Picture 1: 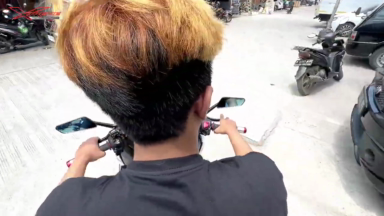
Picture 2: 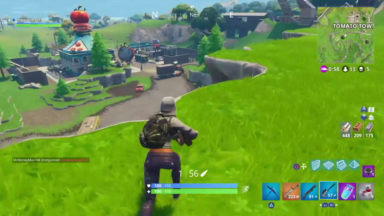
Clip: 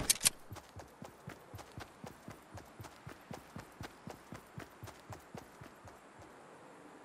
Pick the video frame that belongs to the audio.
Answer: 2